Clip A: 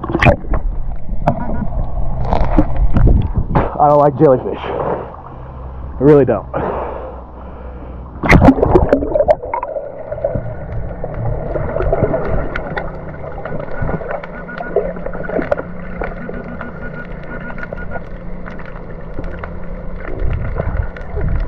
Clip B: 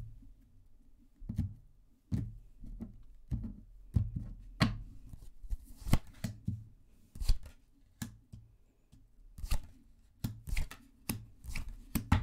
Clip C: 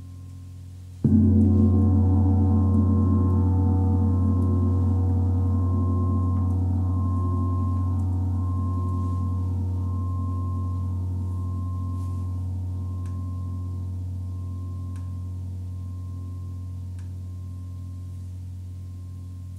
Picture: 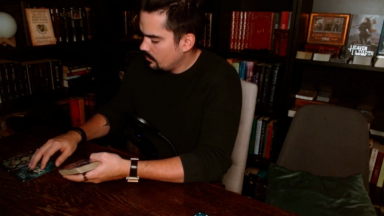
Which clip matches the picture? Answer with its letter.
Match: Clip B